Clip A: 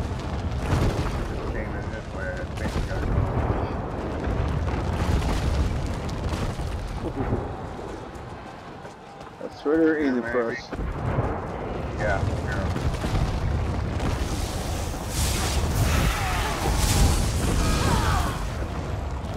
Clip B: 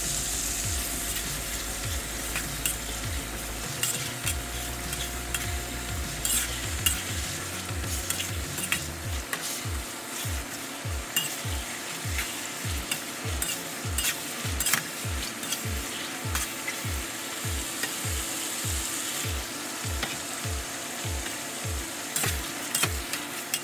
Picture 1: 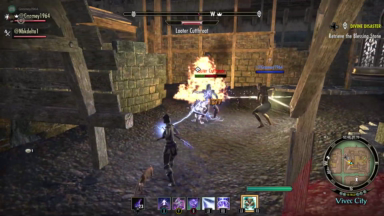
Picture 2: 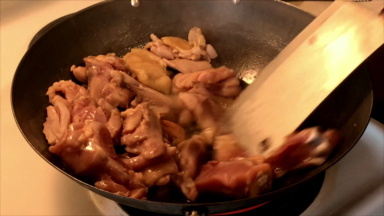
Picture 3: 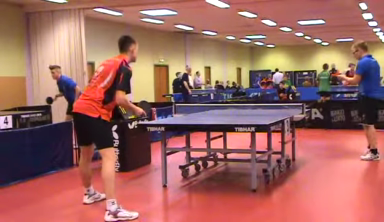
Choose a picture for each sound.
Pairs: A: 1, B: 2